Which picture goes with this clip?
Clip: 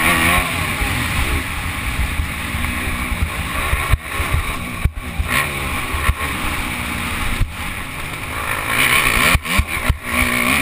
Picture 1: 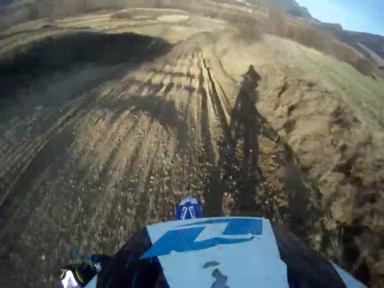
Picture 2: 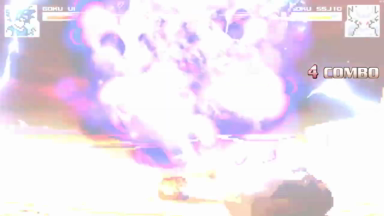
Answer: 1